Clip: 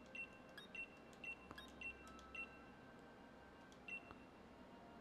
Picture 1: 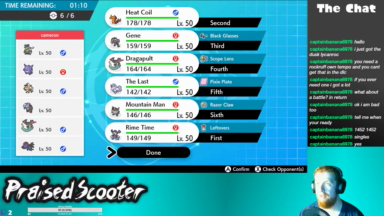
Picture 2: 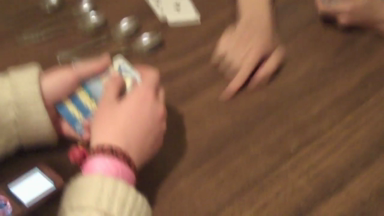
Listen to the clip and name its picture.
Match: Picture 1